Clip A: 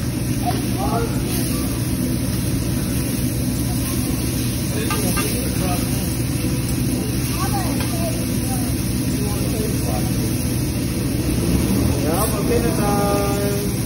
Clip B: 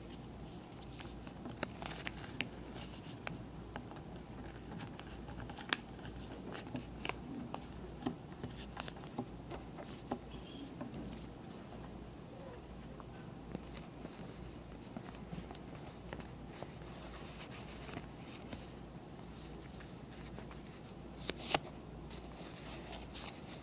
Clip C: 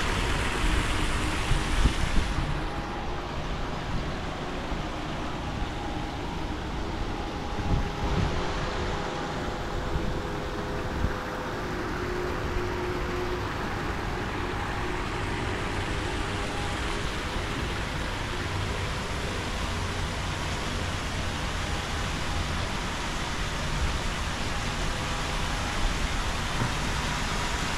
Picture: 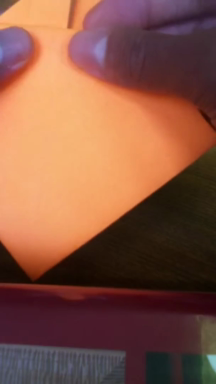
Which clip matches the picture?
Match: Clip B